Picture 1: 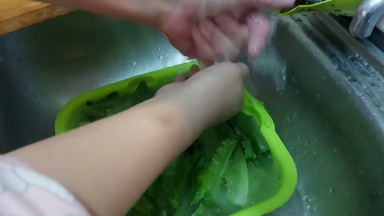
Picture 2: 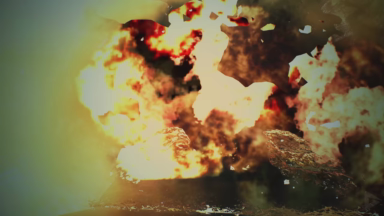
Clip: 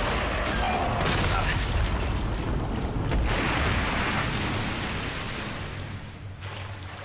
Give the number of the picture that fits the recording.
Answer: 2